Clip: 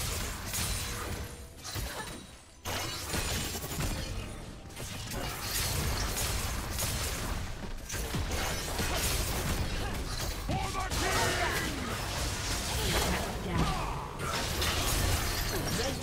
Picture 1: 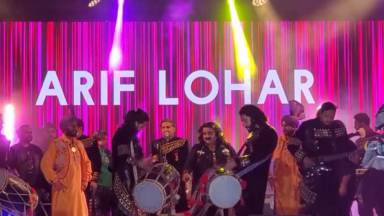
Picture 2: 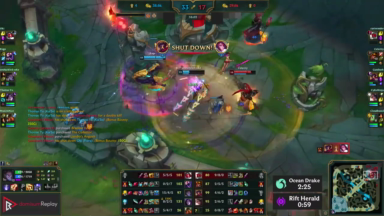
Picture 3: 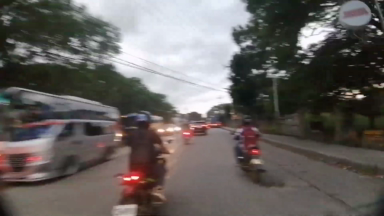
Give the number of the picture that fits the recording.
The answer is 2